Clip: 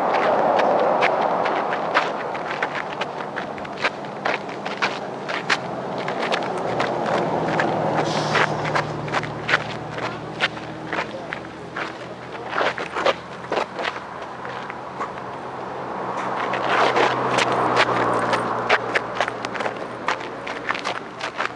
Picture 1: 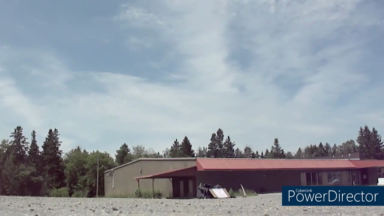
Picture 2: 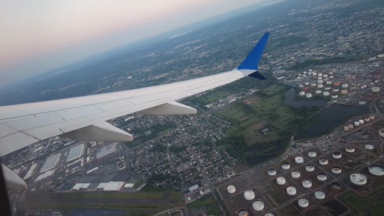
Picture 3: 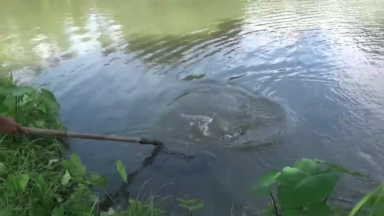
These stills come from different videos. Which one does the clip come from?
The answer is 1